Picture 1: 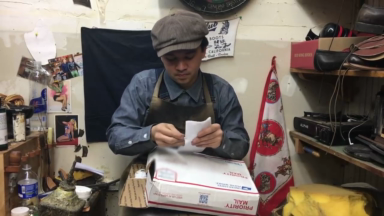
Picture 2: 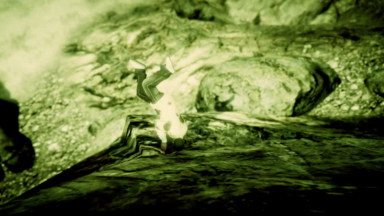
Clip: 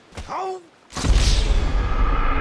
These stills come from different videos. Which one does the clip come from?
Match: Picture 2